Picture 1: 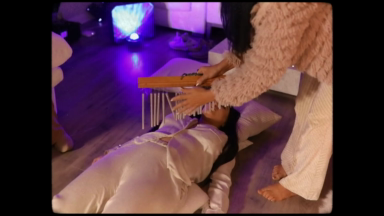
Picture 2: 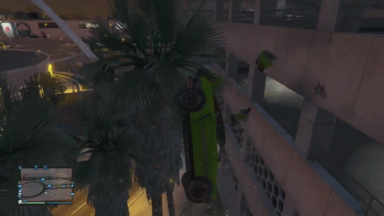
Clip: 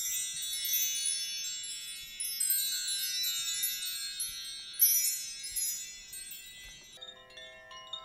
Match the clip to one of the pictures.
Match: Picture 1